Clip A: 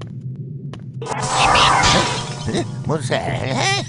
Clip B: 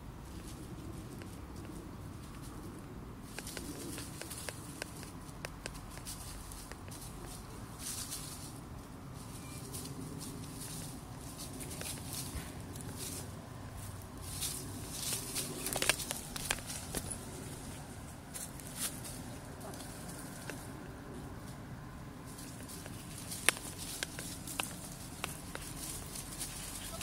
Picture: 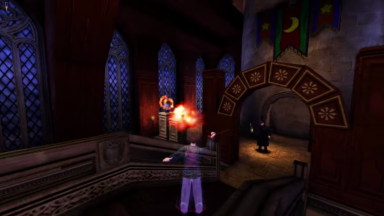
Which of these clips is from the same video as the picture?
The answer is A